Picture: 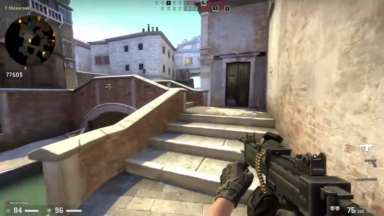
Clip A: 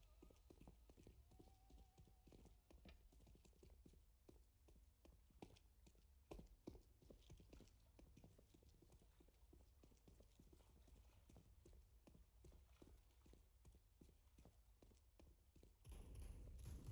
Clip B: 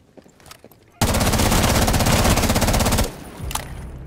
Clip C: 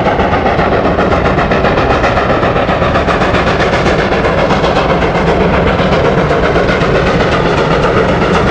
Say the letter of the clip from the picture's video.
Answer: A